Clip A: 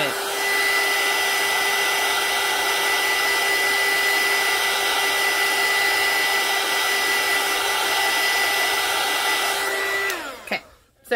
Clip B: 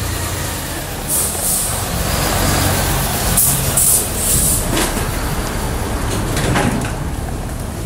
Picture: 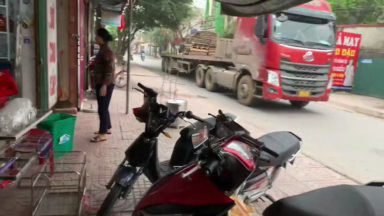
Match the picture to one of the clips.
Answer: B